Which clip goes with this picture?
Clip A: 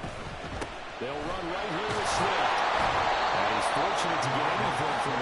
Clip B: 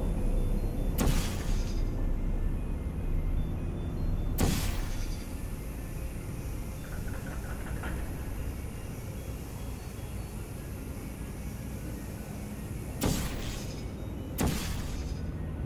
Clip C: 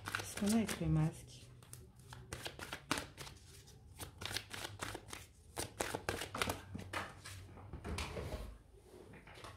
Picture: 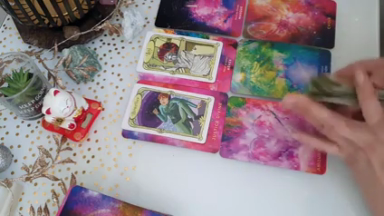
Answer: C